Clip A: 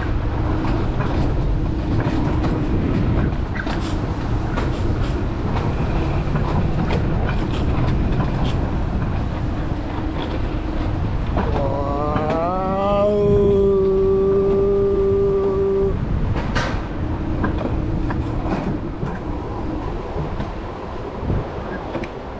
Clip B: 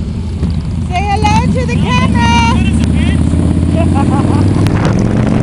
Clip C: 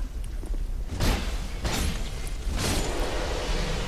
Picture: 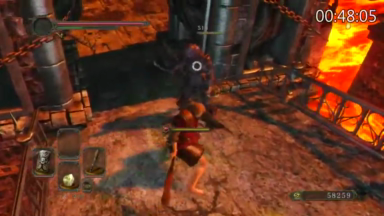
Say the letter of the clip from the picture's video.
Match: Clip C